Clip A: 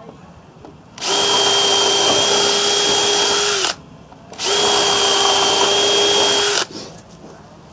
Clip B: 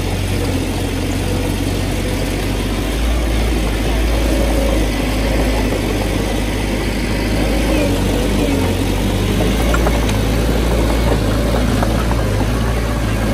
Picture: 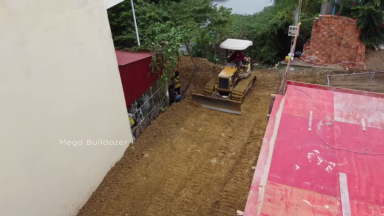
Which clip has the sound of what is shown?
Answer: B